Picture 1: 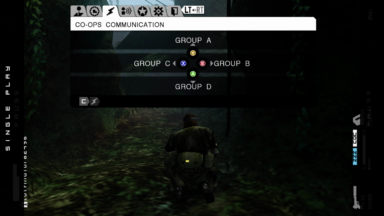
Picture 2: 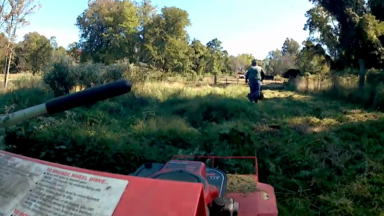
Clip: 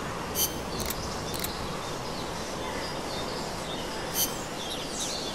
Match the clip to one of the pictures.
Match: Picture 1